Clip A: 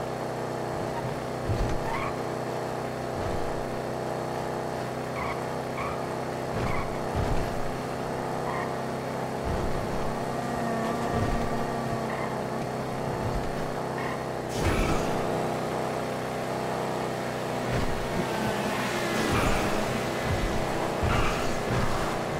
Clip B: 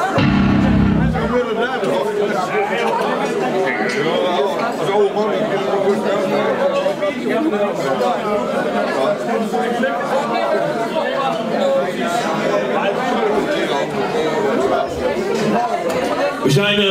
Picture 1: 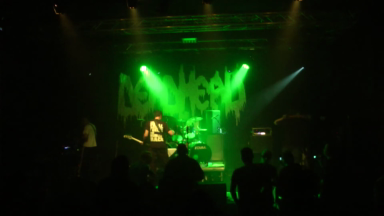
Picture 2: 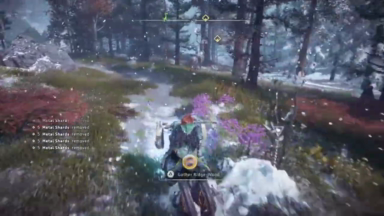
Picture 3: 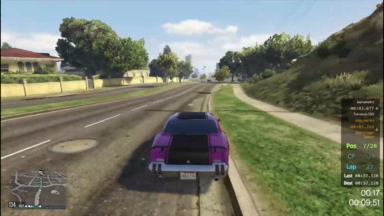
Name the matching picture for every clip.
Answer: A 3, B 1